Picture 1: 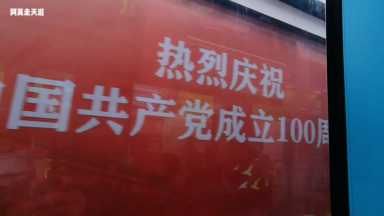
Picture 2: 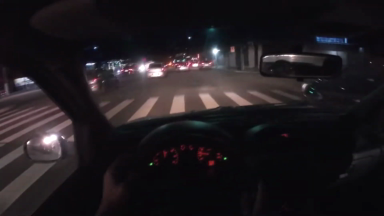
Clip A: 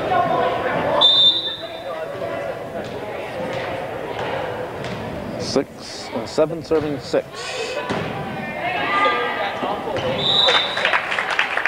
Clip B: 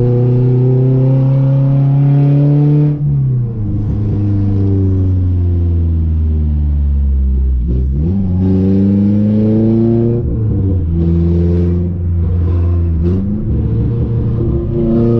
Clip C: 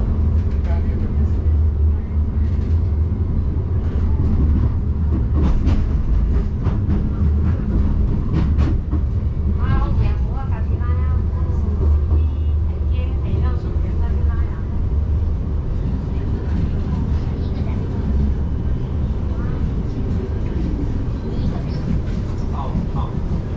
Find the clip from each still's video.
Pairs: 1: C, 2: B